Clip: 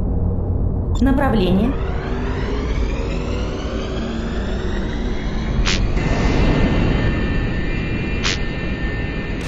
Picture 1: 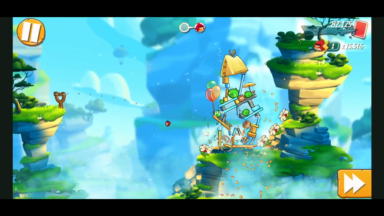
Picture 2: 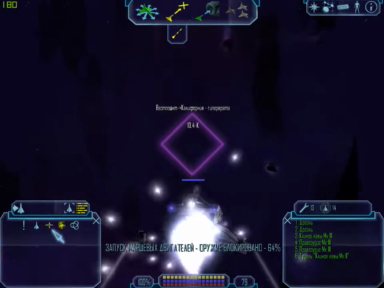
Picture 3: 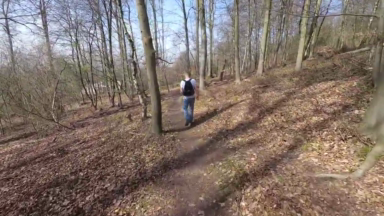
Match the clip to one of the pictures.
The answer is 2